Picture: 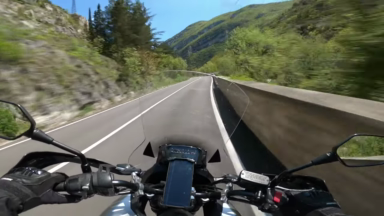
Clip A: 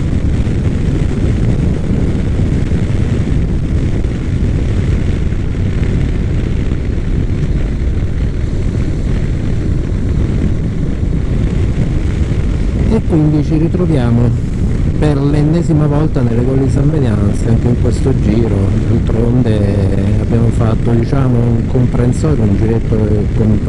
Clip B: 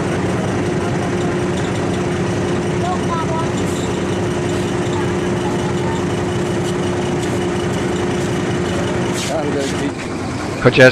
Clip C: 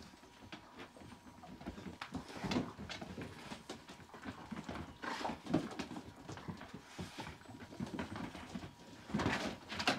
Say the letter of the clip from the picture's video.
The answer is A